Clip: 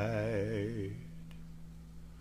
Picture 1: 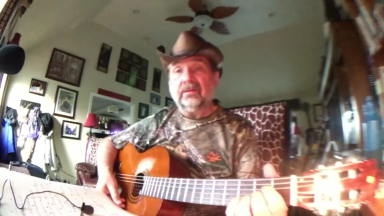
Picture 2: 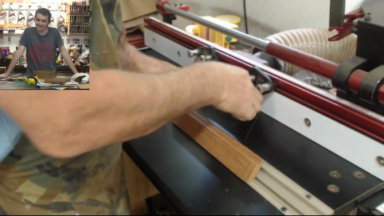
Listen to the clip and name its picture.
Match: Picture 1